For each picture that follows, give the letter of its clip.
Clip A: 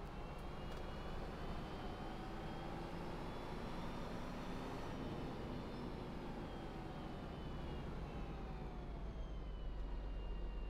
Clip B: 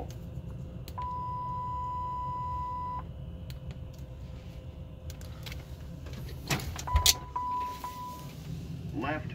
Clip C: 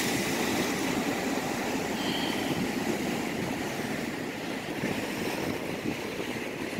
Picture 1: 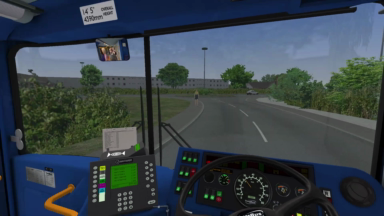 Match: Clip A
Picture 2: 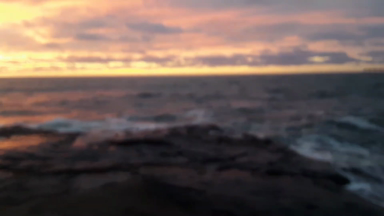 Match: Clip C